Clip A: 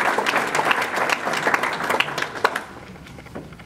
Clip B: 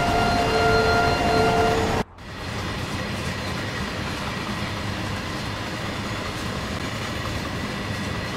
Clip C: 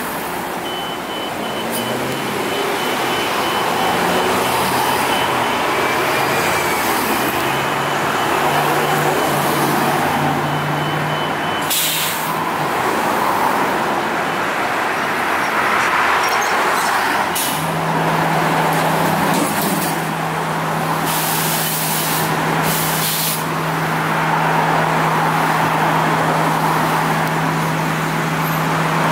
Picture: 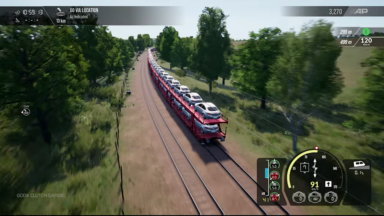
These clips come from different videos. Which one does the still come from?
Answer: B